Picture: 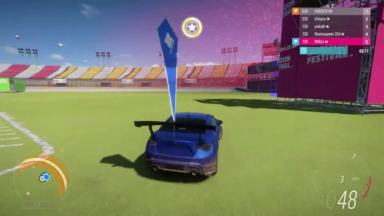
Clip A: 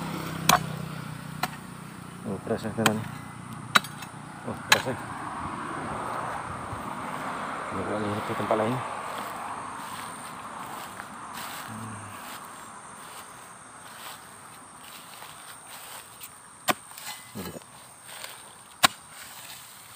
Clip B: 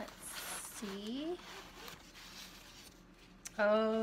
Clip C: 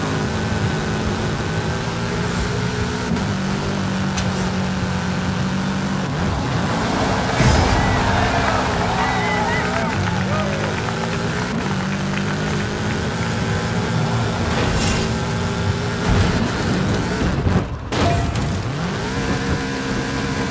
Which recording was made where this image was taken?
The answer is C